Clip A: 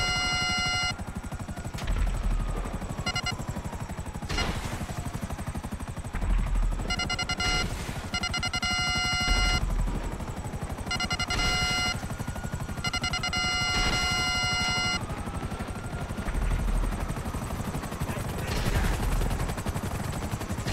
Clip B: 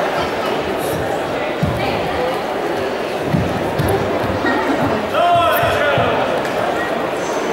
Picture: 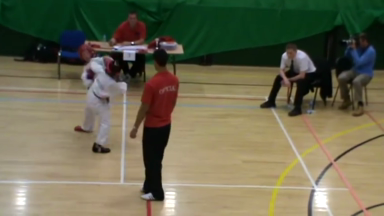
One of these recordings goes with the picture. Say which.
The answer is B